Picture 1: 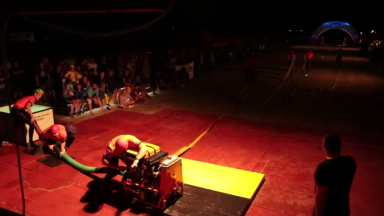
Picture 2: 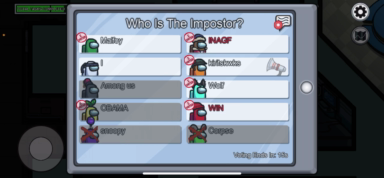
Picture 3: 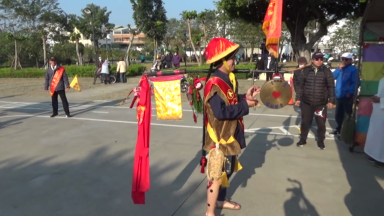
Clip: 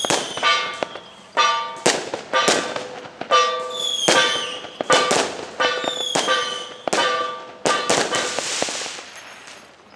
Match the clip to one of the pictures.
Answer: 3